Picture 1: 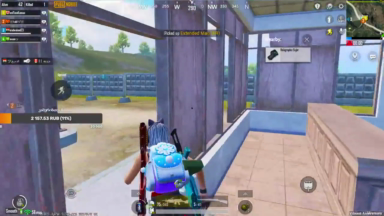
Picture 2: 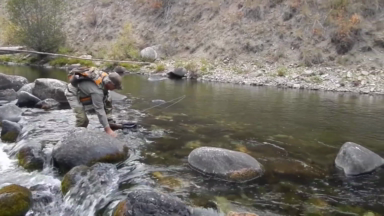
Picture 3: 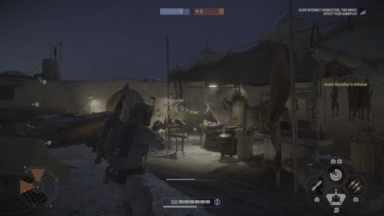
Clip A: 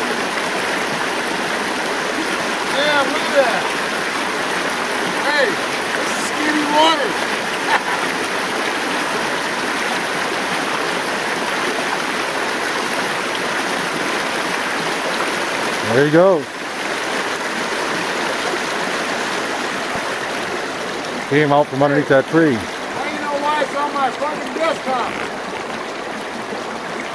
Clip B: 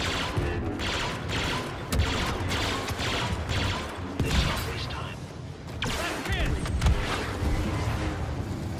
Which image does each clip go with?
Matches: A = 2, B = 3